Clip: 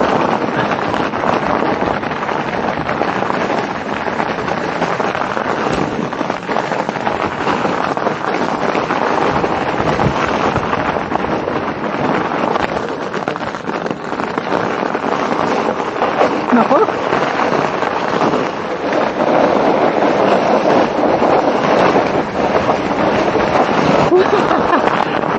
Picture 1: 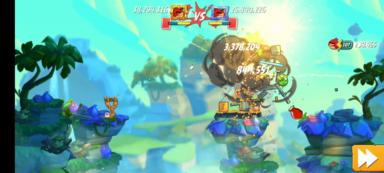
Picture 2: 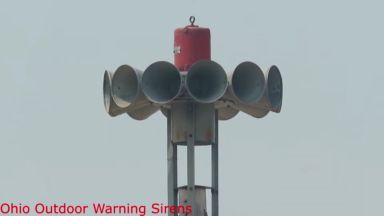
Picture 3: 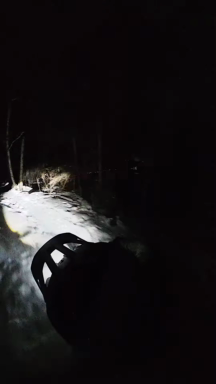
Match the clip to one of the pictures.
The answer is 3